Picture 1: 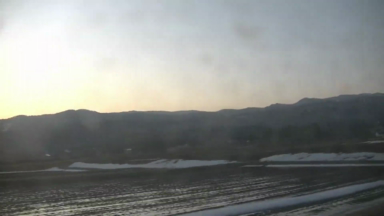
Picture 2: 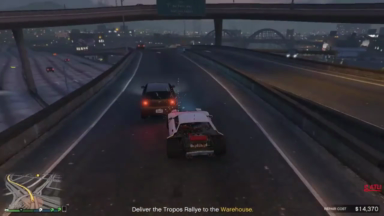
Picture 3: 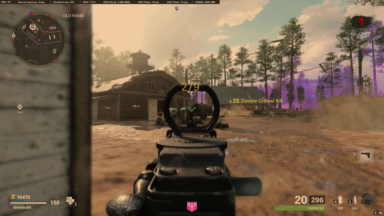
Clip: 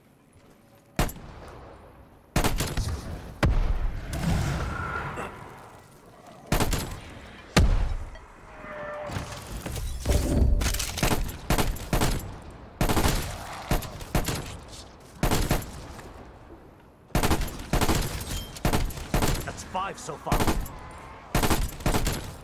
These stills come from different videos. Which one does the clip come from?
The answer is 3